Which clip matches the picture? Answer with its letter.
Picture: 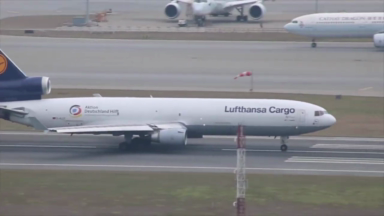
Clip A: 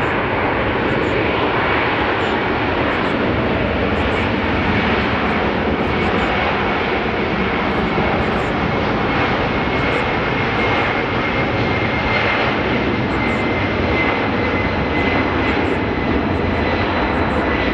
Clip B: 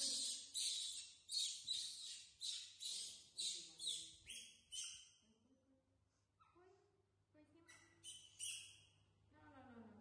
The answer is A